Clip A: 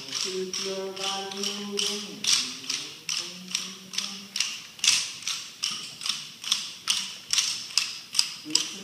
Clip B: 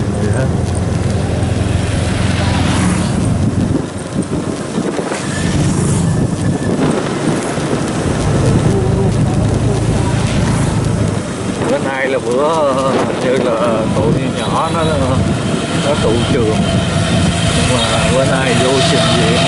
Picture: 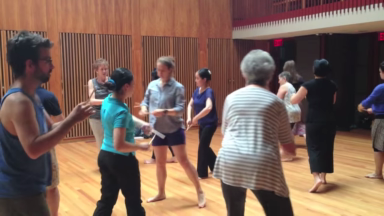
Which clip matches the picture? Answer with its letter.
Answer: A